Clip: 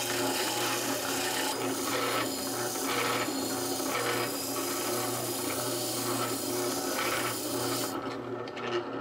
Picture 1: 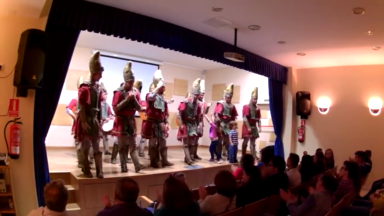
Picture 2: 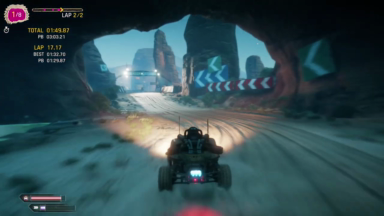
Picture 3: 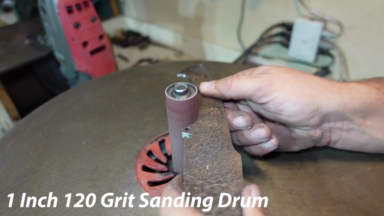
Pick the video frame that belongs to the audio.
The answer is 3